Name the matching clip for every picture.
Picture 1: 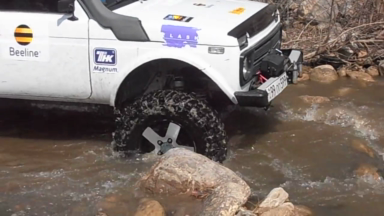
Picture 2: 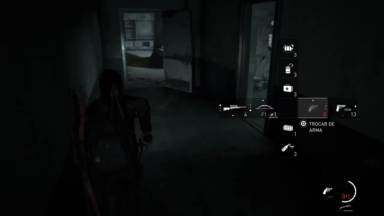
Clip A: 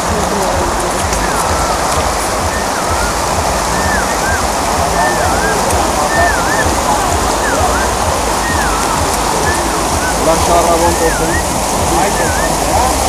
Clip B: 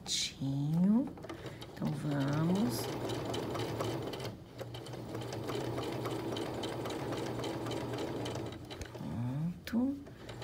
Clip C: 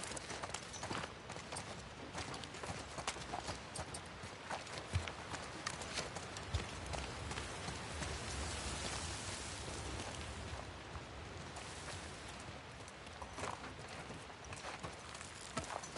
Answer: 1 A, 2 C